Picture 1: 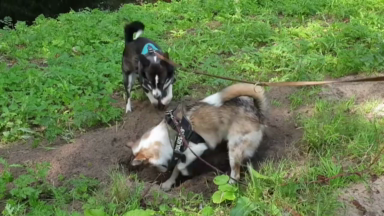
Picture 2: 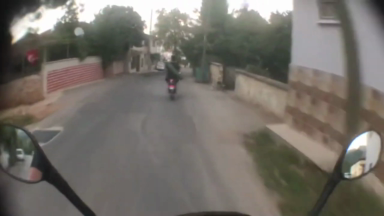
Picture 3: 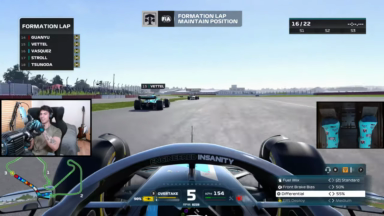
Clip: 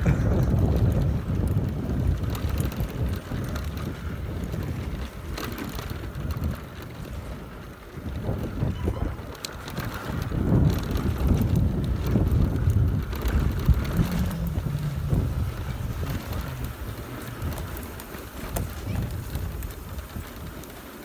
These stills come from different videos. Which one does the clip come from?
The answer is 2